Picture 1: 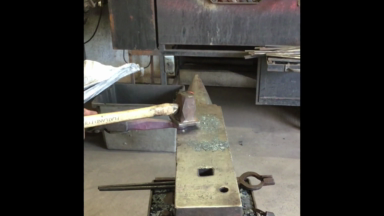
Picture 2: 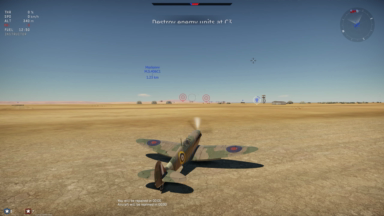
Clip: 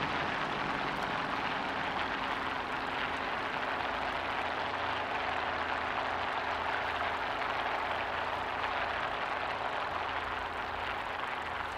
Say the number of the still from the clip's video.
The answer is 2